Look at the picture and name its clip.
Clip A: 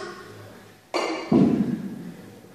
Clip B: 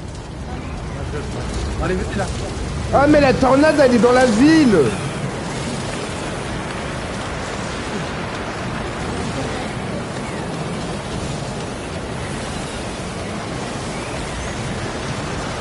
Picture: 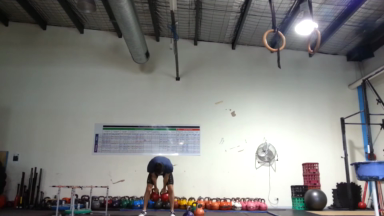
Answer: A